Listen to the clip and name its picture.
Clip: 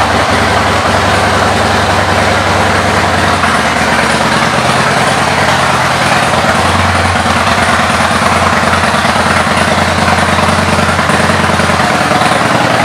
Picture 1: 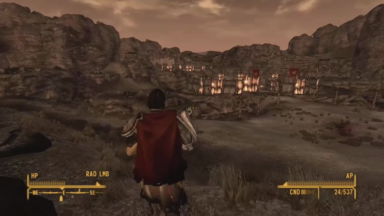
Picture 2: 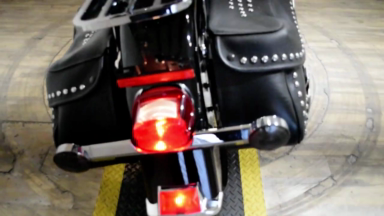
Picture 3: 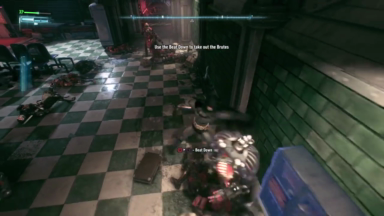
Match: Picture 2